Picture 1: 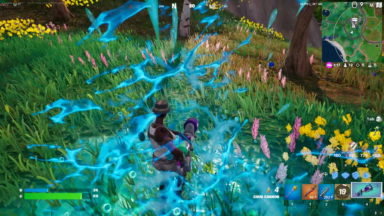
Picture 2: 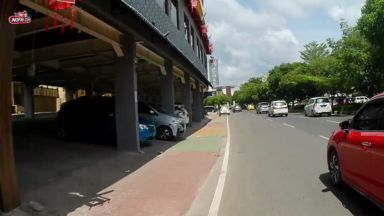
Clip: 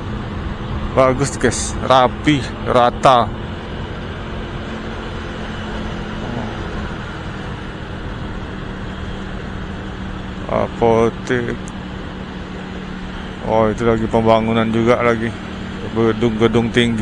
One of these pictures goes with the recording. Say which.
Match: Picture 2